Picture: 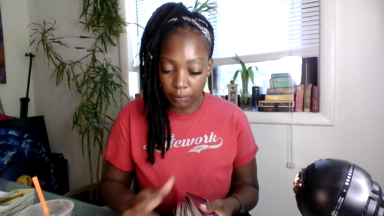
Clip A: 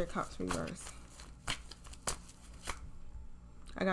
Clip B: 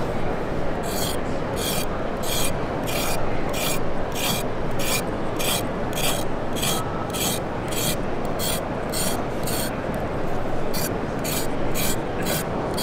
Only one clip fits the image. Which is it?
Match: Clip A